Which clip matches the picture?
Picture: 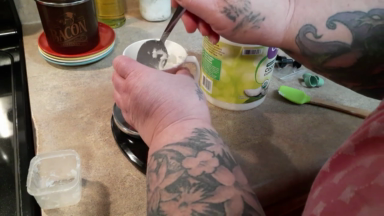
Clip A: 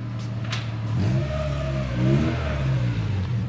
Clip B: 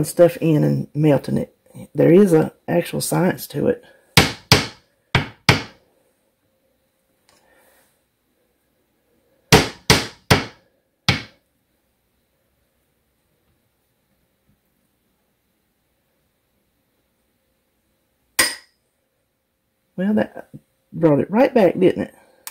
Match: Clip B